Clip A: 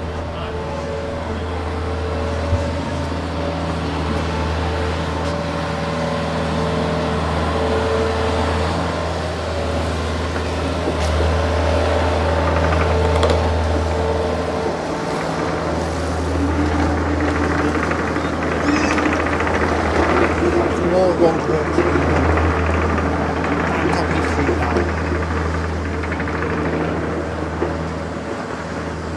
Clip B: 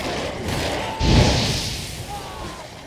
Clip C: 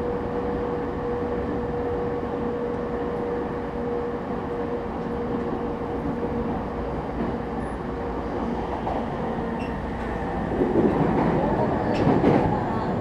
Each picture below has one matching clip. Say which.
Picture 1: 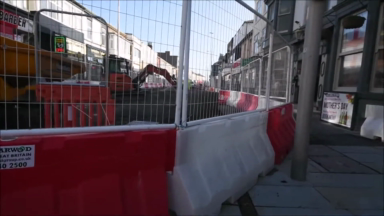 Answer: A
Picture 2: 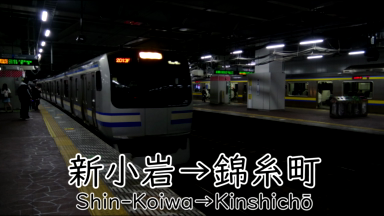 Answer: C